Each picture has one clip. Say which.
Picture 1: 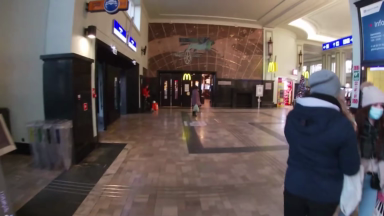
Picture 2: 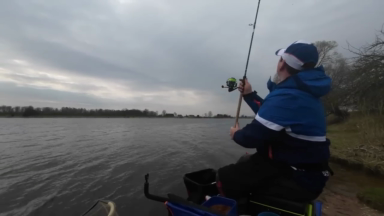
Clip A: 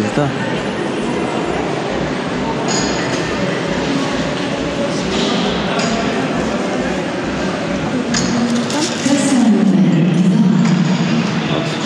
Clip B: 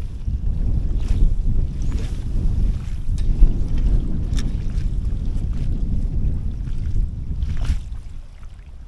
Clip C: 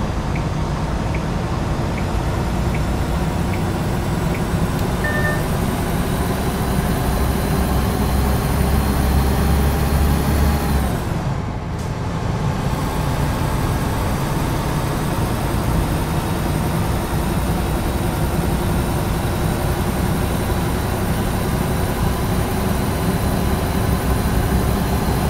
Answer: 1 A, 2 B